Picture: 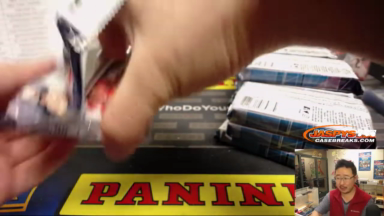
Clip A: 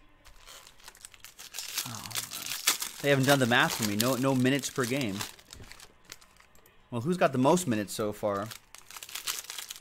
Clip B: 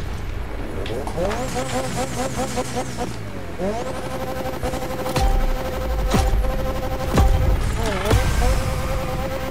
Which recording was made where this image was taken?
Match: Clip A